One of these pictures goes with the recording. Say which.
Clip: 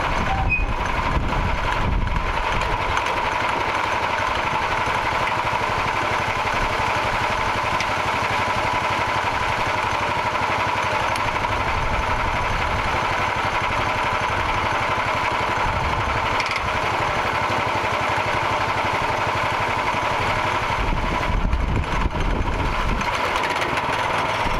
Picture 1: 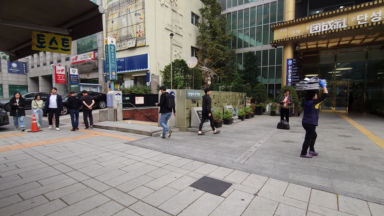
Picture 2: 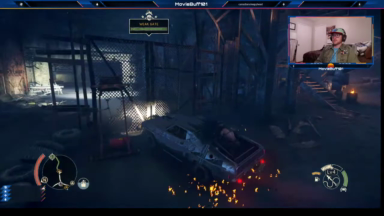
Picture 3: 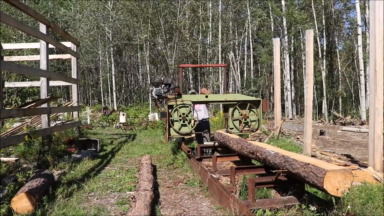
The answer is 3